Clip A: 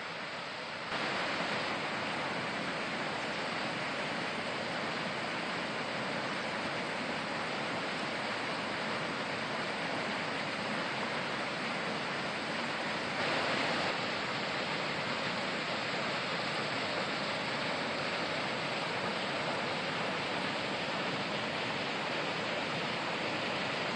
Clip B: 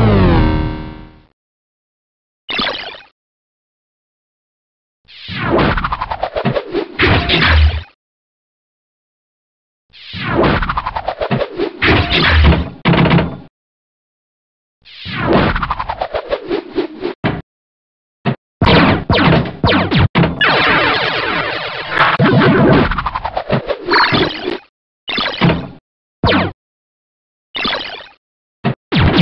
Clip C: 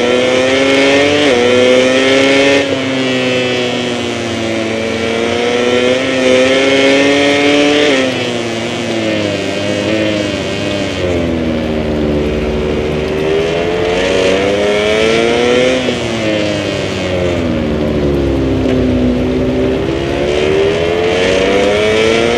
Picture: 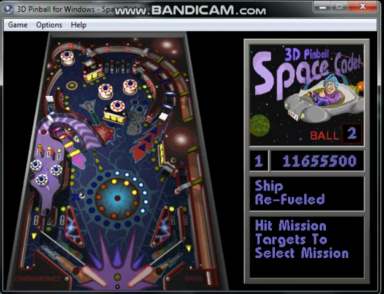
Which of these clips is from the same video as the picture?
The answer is B